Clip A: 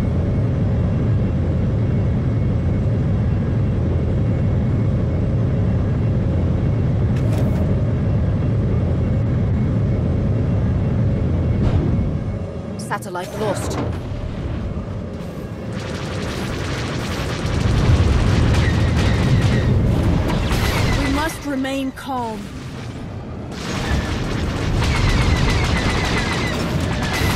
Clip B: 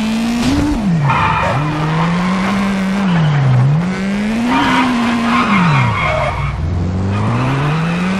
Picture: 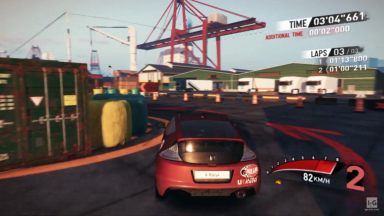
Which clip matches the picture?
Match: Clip B